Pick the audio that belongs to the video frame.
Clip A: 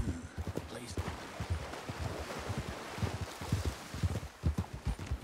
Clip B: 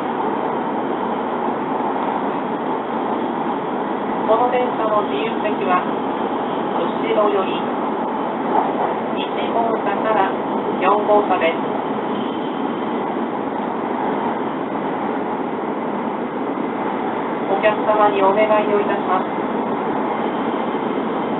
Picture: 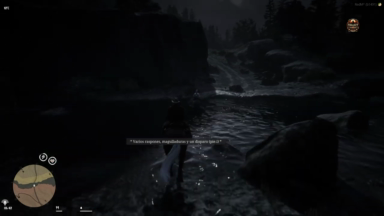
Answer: A